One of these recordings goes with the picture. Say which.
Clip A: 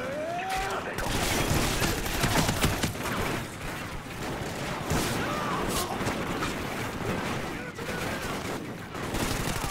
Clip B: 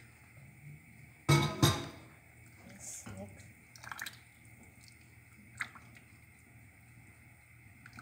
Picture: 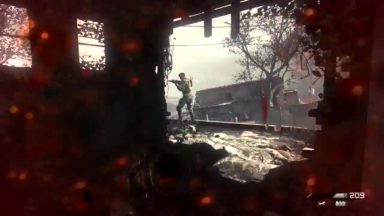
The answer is A